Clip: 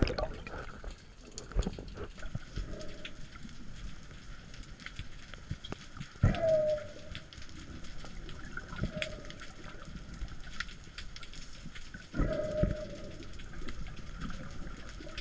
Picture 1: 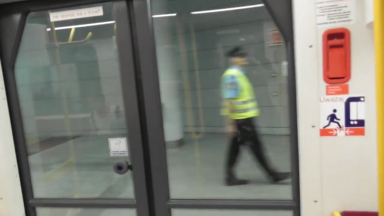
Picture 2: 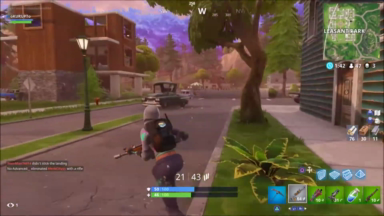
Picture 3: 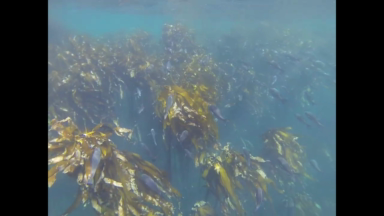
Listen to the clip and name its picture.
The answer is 3